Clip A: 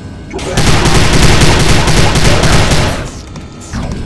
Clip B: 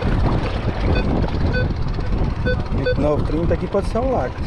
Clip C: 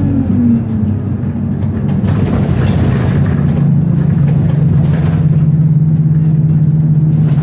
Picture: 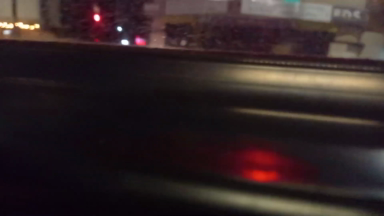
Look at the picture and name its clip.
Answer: C